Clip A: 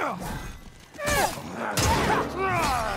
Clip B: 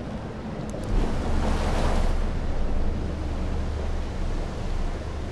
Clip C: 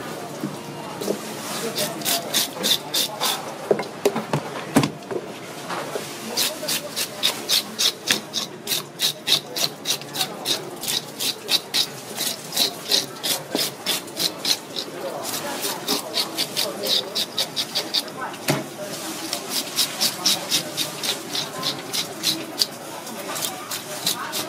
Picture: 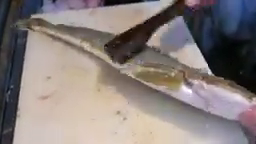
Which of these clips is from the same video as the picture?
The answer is C